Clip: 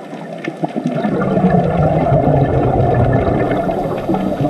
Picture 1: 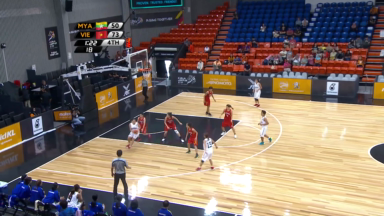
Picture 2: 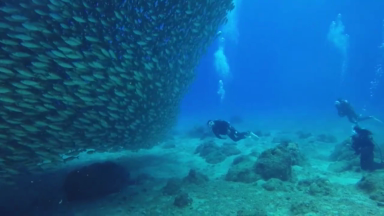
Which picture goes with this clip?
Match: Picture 2